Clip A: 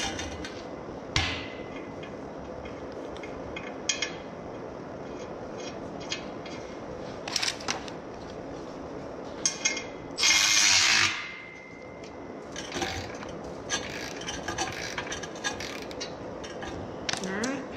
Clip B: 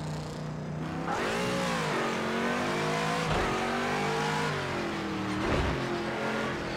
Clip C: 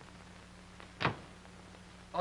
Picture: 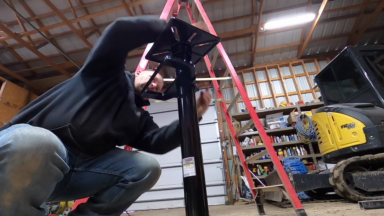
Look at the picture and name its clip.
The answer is A